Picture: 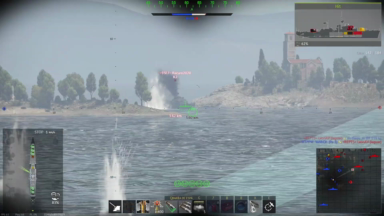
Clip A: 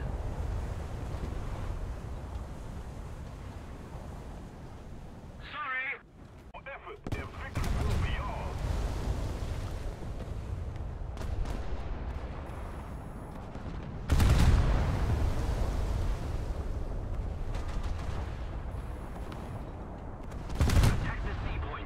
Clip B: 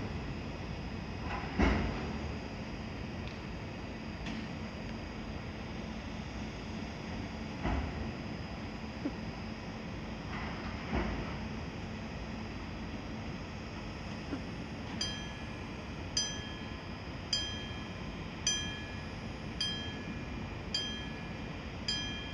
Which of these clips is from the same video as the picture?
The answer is A